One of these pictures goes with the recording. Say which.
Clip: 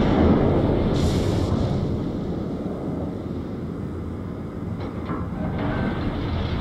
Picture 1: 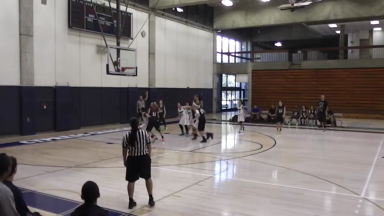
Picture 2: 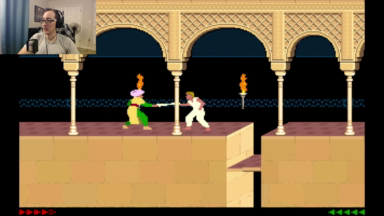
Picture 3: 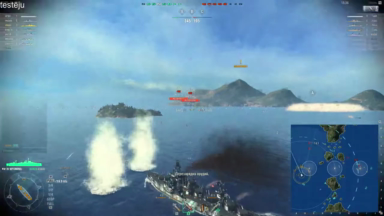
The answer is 3